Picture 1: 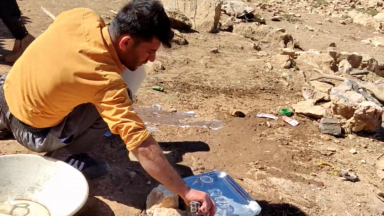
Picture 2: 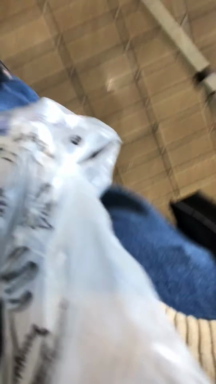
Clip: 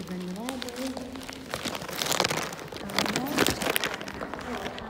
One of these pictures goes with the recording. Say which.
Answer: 2